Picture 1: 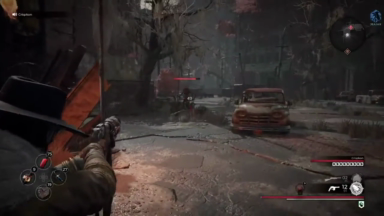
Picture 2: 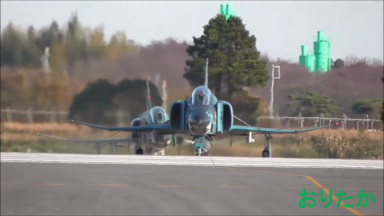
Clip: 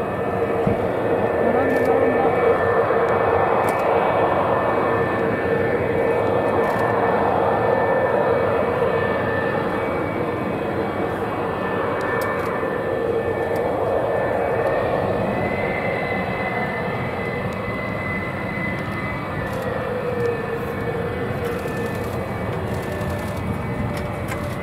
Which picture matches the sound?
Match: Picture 2